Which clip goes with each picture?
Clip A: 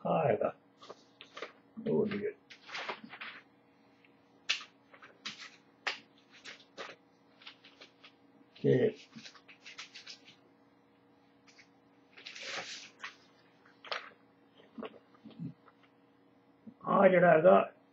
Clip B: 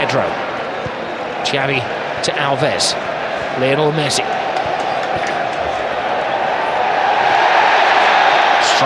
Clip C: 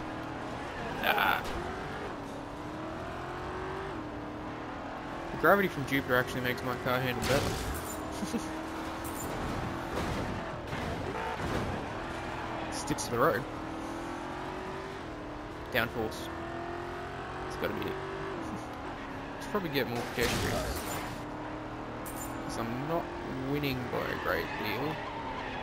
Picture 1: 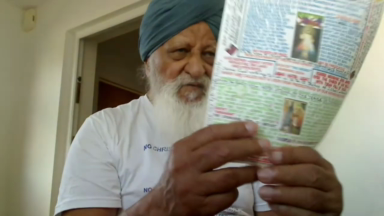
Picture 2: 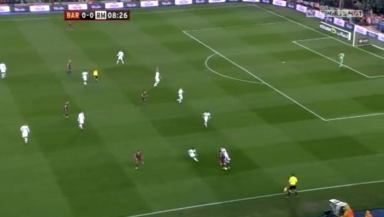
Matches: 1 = A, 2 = B